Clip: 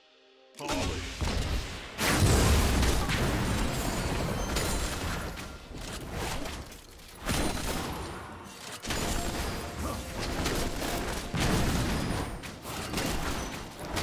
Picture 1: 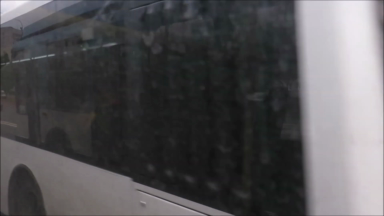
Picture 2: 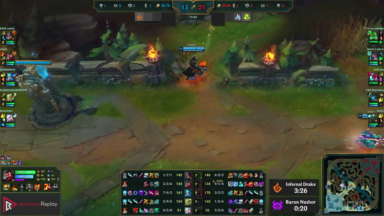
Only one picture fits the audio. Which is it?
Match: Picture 2